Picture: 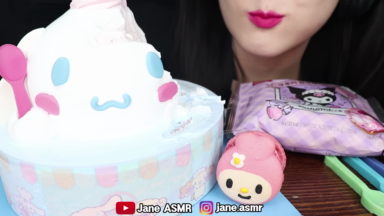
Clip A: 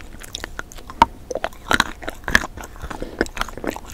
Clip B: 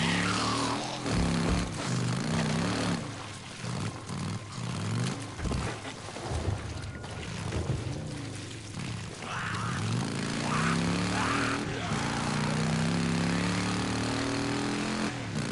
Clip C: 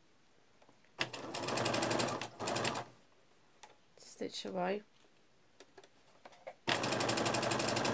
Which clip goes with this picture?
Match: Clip A